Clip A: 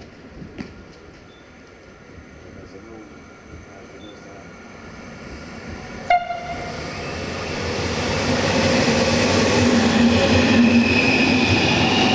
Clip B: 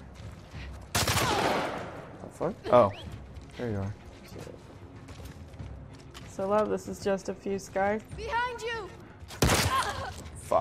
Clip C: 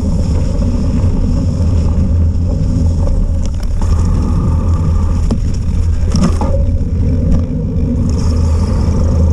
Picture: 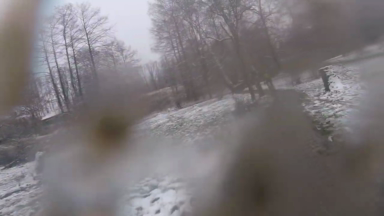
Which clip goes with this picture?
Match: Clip C